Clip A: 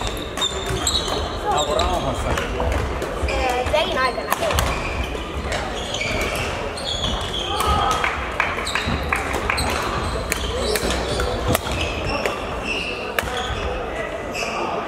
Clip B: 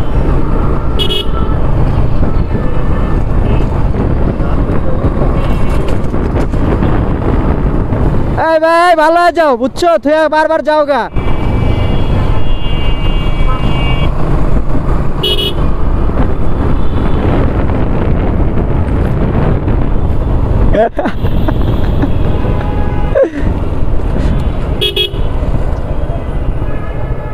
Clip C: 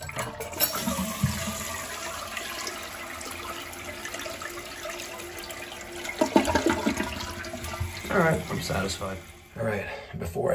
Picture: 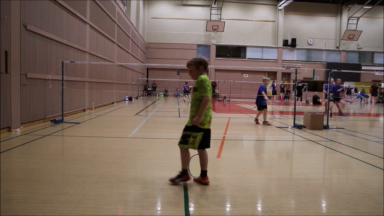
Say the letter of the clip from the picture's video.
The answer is A